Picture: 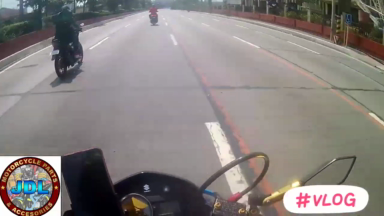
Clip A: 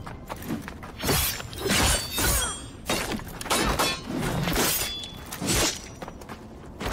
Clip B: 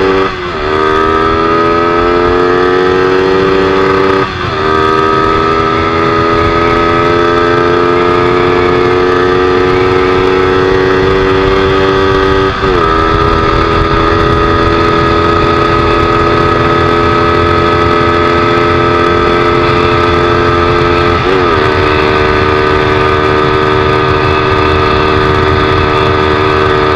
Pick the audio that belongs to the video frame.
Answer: B